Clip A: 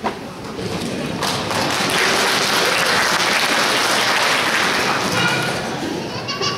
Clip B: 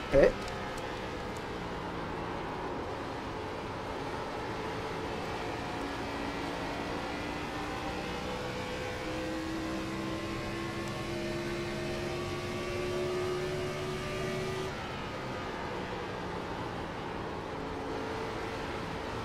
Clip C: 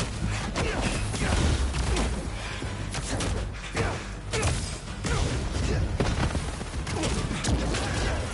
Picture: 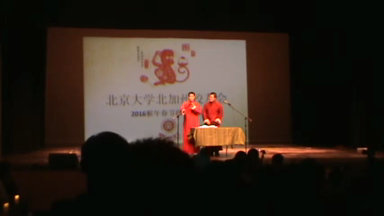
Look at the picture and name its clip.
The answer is A